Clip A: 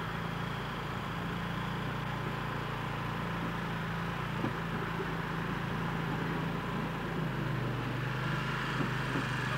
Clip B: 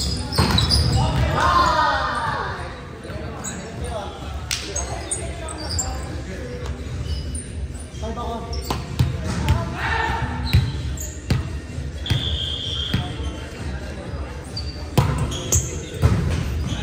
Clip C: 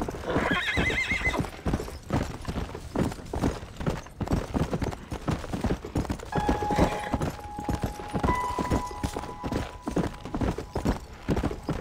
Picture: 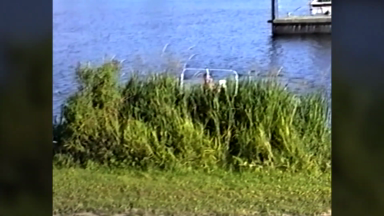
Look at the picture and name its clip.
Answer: A